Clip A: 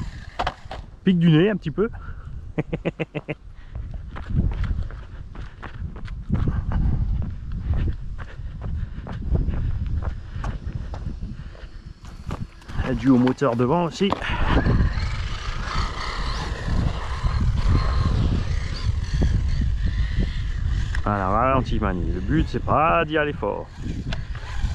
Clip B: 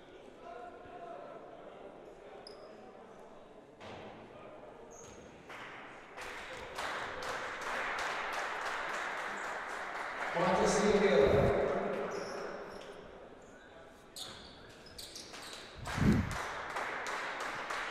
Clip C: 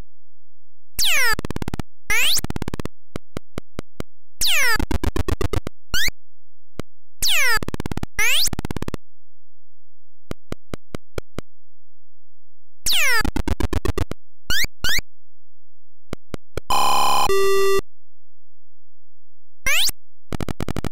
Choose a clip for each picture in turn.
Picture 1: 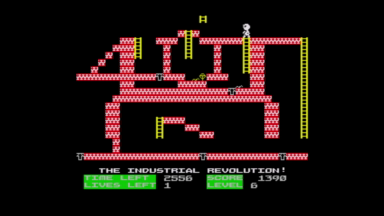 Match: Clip C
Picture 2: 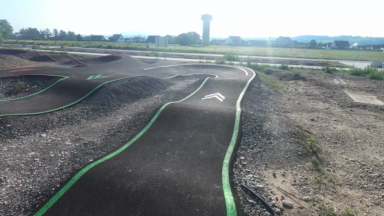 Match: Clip A